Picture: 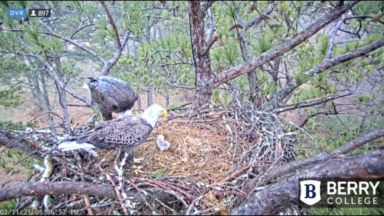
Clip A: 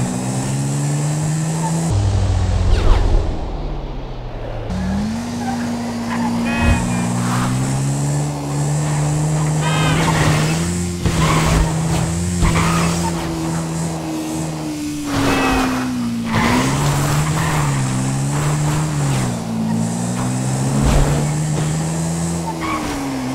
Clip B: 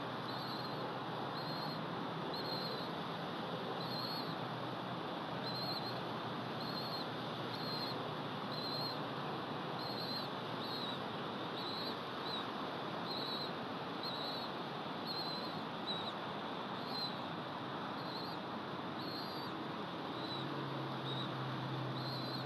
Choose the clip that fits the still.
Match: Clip B